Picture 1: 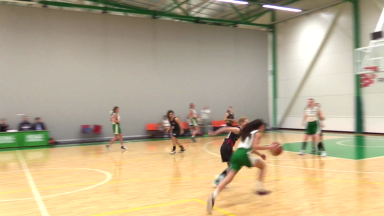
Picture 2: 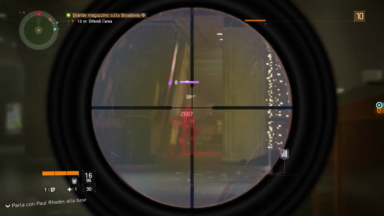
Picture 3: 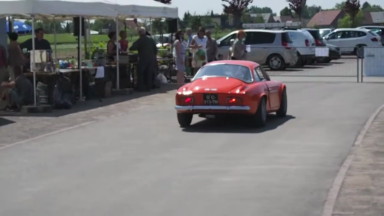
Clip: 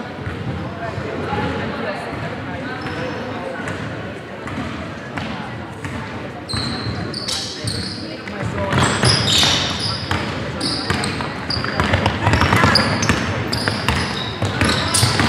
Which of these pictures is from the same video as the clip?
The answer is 1